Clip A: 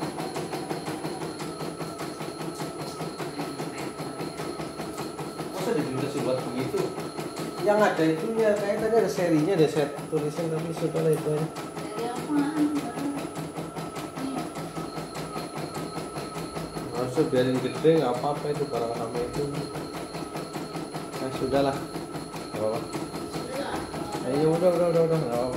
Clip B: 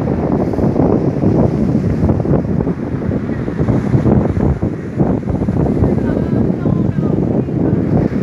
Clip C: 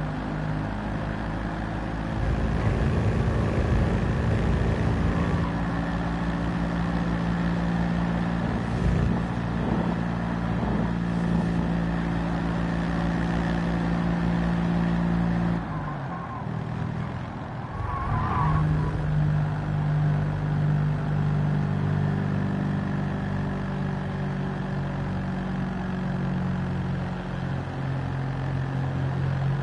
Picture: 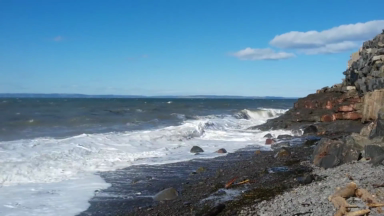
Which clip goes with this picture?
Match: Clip B